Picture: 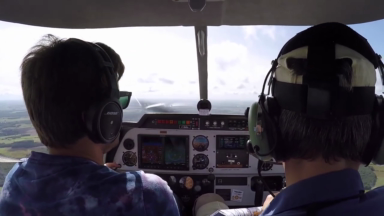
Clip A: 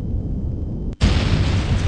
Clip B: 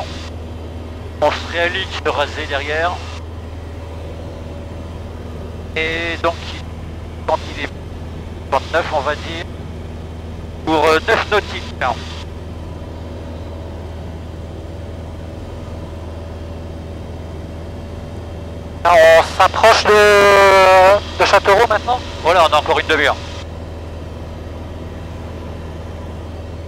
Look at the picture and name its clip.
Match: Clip B